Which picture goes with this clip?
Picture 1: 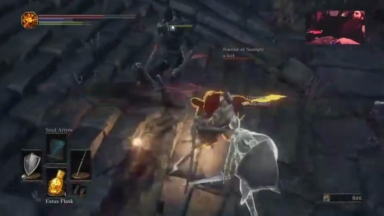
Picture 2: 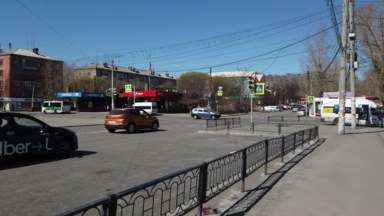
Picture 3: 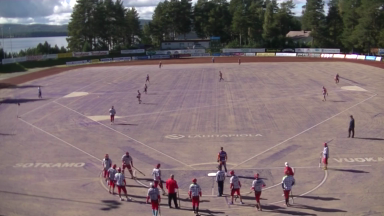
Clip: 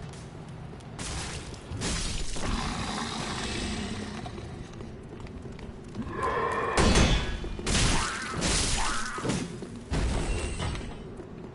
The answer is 1